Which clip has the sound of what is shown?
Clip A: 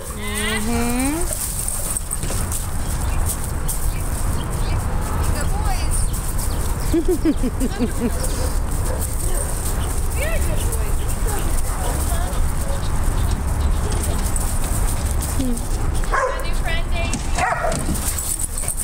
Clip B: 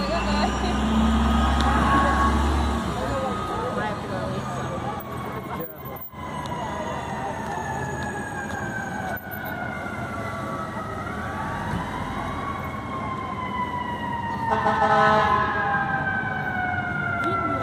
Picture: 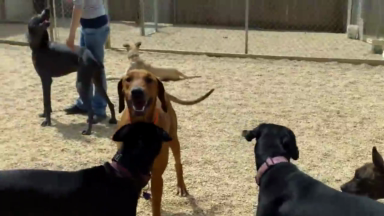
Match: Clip A